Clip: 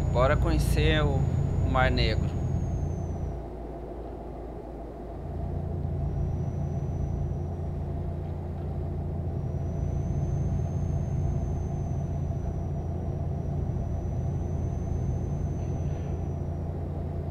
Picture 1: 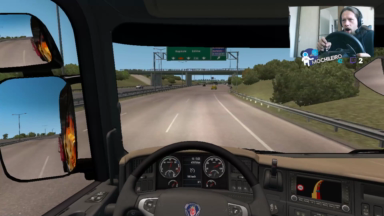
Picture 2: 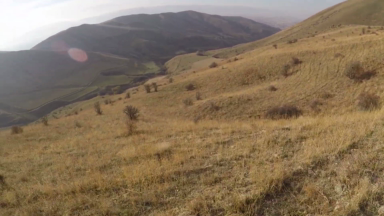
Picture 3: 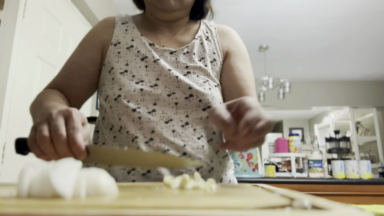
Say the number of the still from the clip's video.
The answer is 1